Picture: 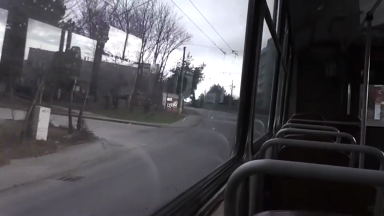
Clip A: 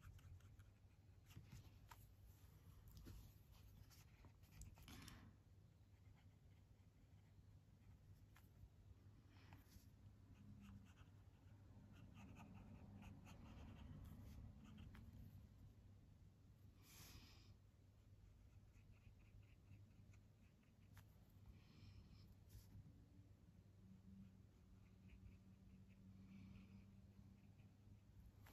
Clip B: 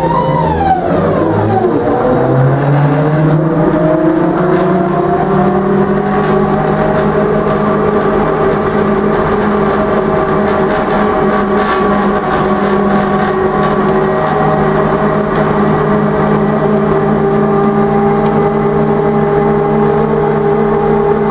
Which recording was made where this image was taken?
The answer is B